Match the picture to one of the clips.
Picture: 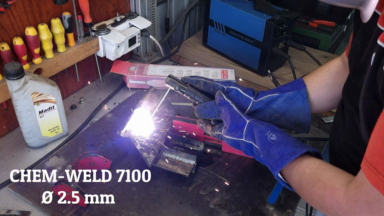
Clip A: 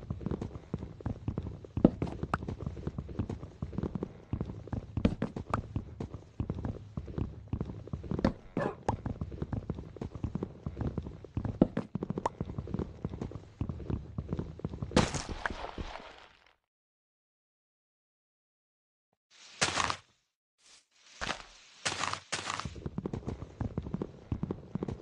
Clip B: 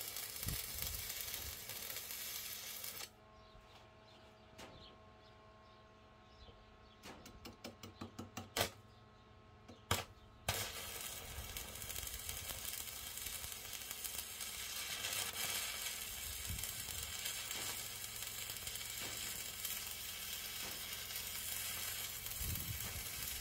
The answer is B